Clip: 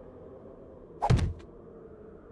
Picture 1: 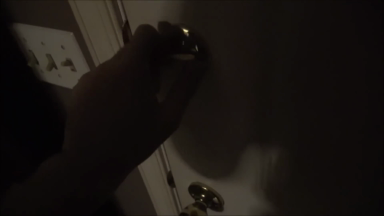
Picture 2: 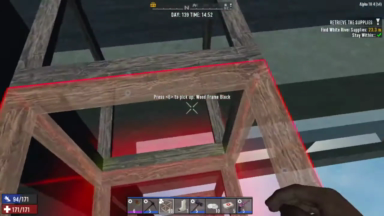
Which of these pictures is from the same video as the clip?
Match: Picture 2